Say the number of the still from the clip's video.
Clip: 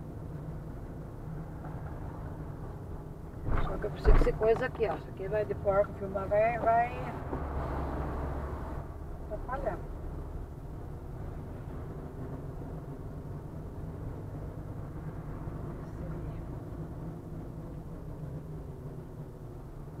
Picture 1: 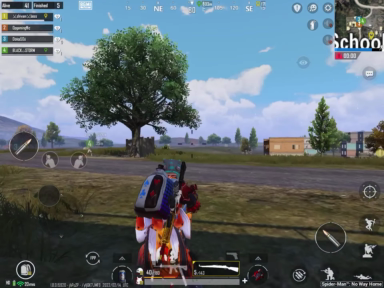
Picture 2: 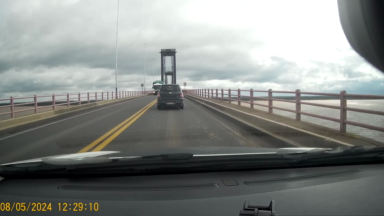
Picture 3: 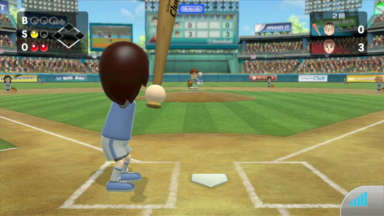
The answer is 2